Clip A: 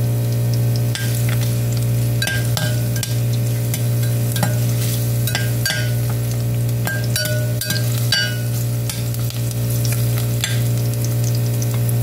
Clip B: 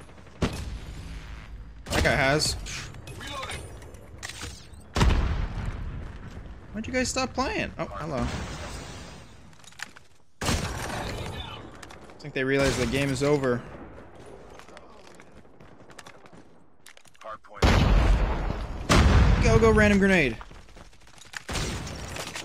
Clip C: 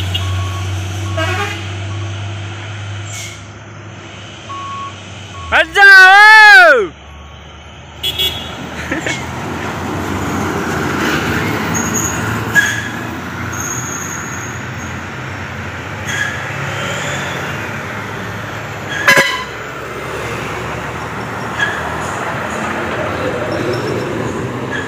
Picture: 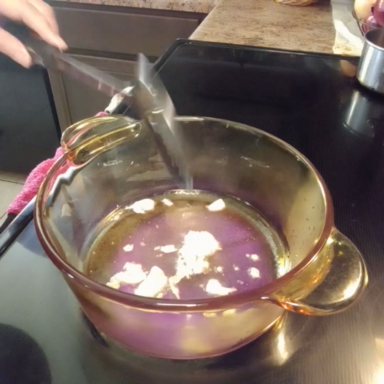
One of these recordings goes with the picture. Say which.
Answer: A